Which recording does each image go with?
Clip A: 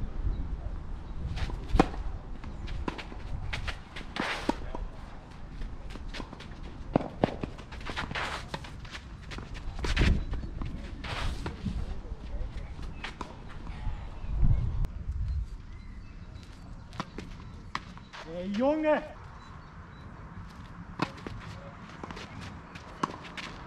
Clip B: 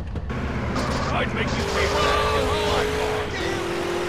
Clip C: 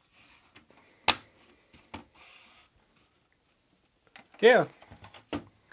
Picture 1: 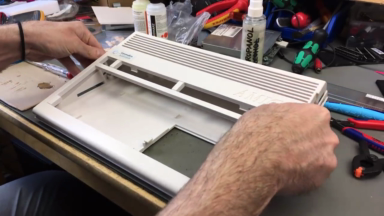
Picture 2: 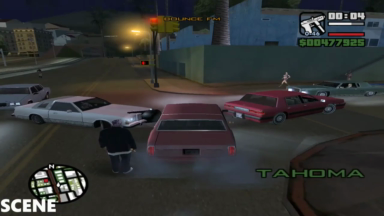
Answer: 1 C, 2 B